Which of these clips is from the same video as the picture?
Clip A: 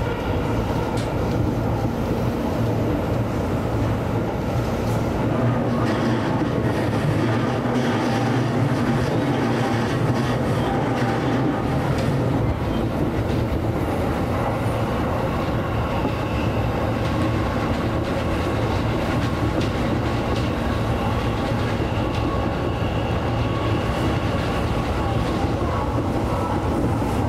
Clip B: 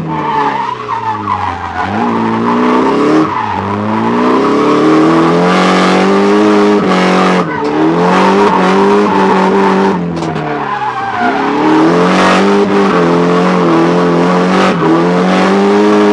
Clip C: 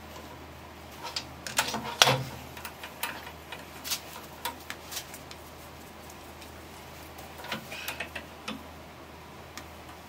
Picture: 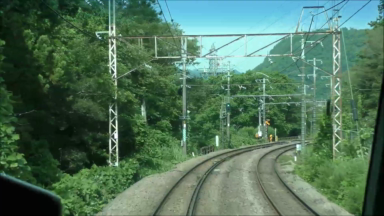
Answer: A